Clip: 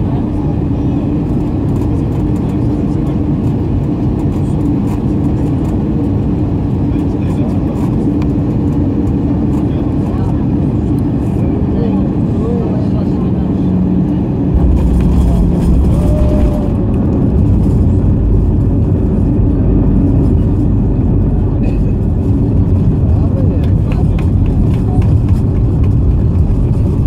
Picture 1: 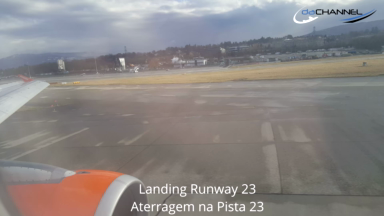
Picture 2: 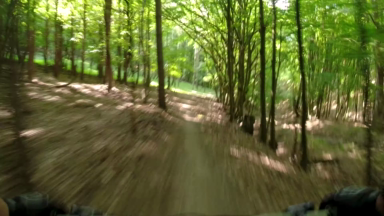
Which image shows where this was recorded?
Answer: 1